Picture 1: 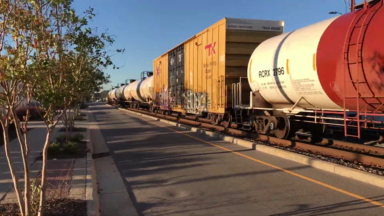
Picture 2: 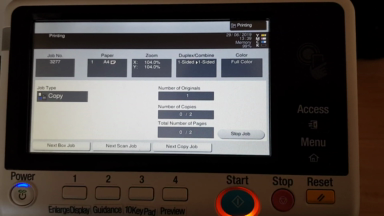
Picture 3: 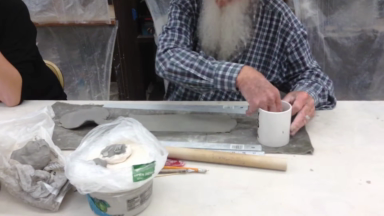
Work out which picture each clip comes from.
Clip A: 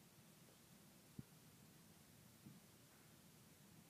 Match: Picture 3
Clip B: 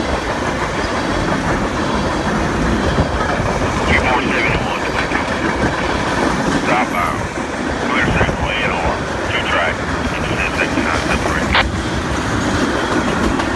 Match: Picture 1